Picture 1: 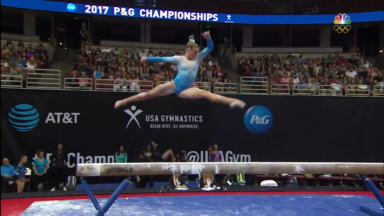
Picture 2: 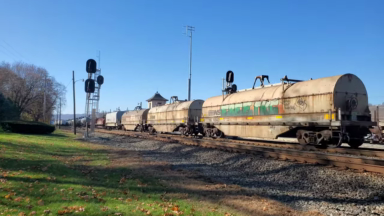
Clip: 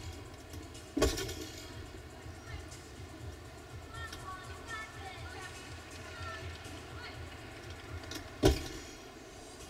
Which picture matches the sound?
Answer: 1